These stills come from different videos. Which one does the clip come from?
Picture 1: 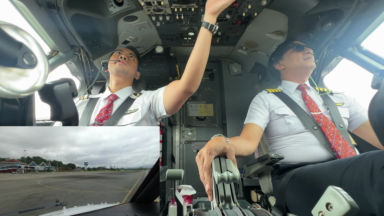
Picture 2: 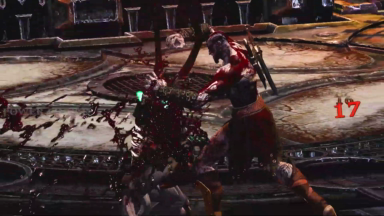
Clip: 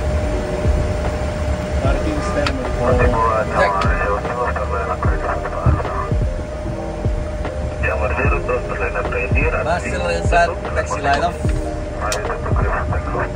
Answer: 1